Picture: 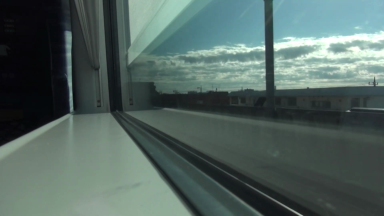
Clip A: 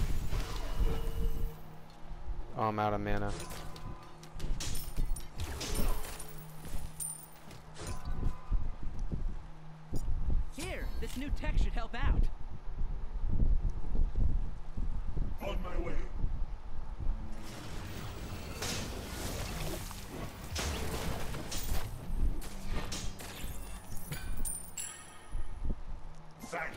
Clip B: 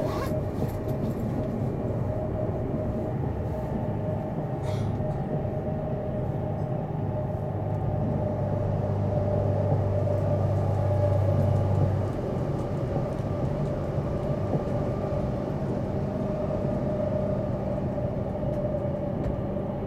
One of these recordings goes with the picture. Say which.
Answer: B